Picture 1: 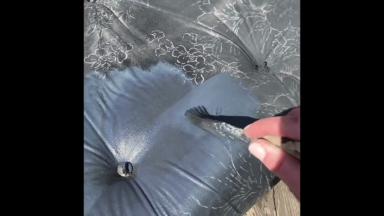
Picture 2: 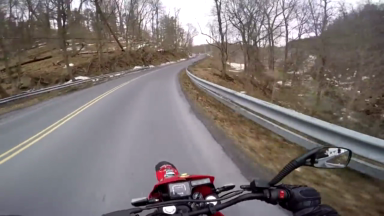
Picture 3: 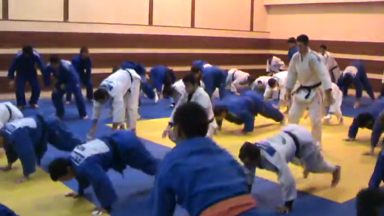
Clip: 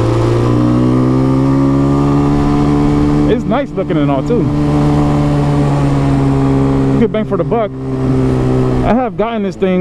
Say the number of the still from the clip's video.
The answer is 2